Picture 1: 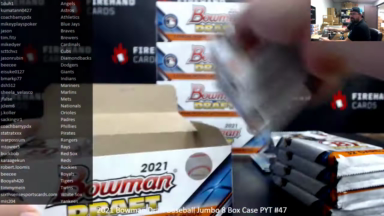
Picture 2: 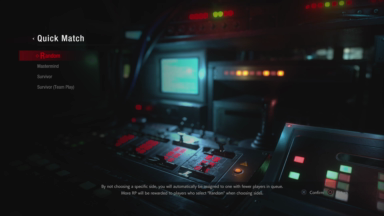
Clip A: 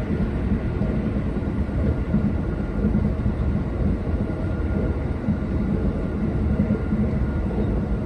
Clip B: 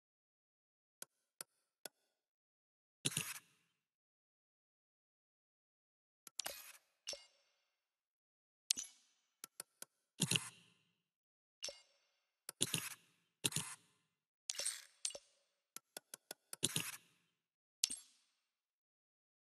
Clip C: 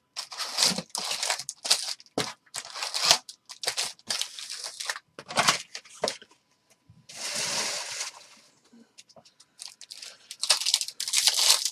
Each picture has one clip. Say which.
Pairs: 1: C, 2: B